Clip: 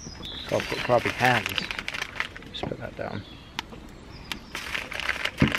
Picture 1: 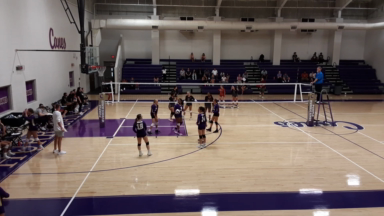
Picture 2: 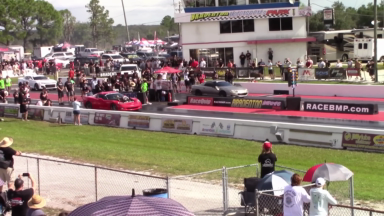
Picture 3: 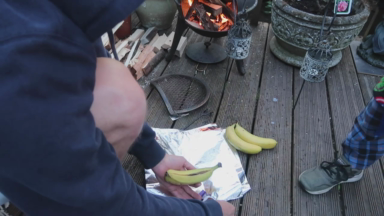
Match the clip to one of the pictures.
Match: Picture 3